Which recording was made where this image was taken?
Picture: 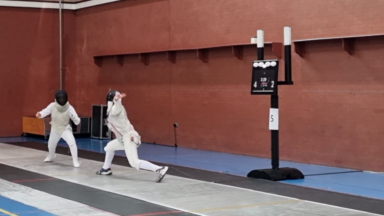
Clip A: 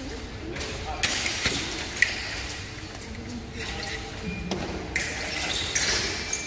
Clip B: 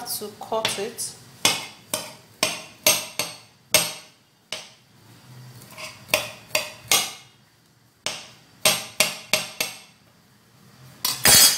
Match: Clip A